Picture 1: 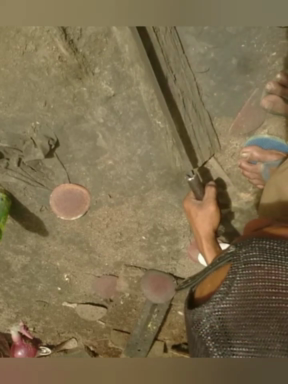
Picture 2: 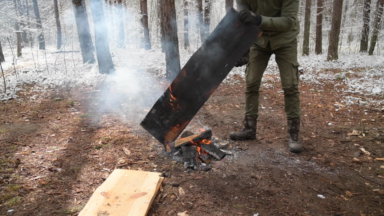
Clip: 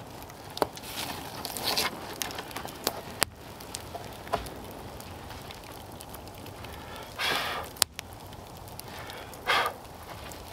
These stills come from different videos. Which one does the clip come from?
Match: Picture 2